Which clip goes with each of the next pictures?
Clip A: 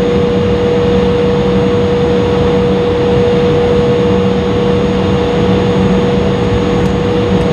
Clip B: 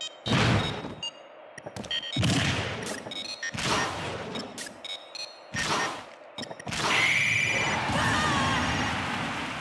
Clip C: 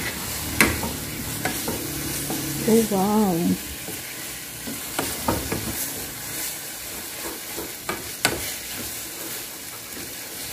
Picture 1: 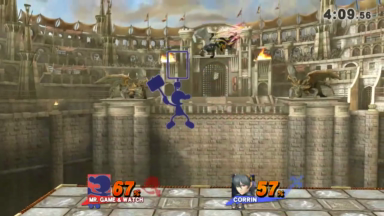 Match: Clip B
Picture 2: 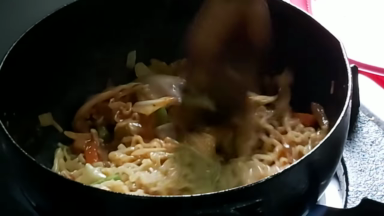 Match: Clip C